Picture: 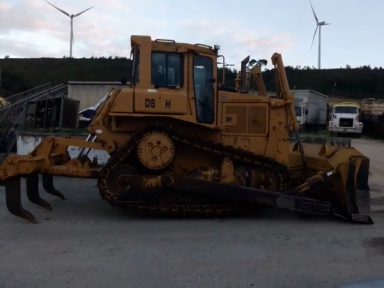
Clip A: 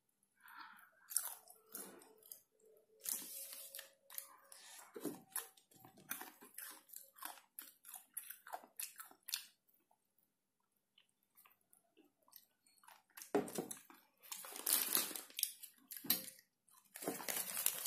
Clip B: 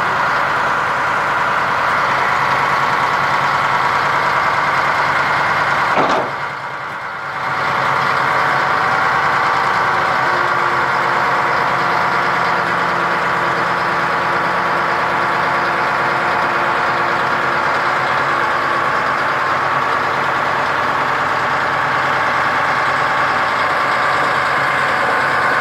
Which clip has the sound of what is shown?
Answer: B